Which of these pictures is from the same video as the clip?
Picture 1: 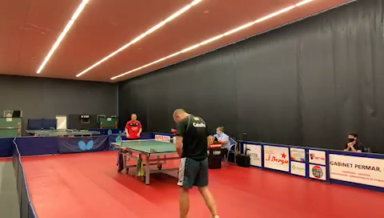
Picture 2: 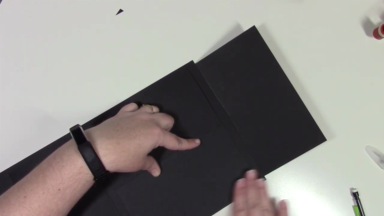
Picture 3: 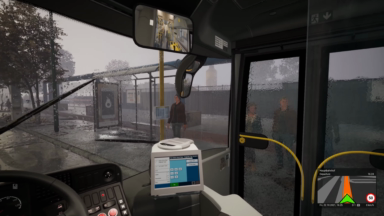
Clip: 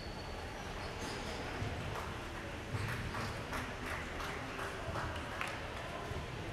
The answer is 1